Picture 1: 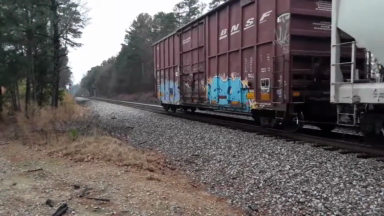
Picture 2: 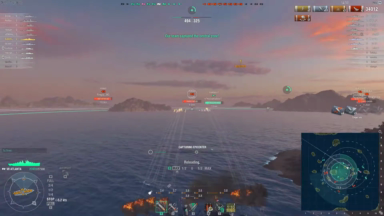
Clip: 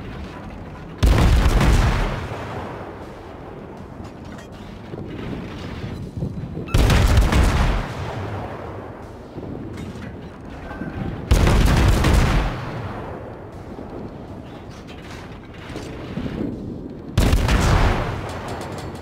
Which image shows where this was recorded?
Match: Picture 2